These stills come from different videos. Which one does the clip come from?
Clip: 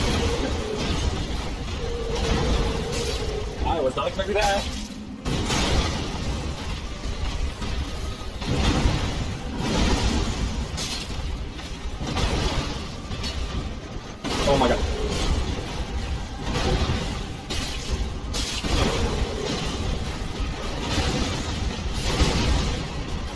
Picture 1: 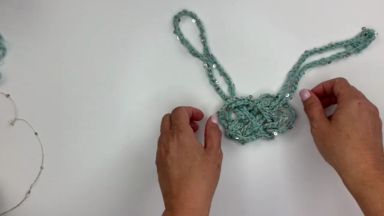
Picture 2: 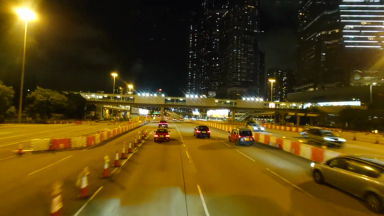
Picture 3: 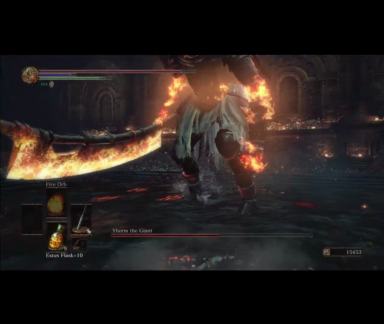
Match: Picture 3